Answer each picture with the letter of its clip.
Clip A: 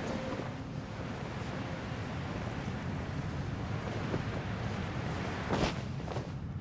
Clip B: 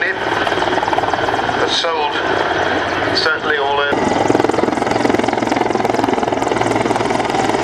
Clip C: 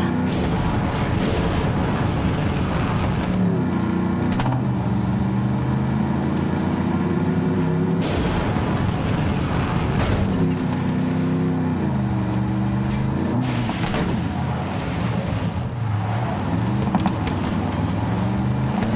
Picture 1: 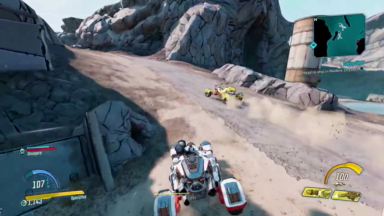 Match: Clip C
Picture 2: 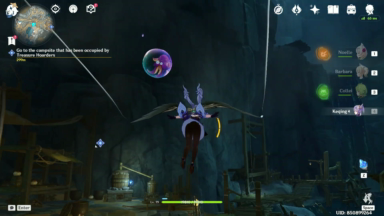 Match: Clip A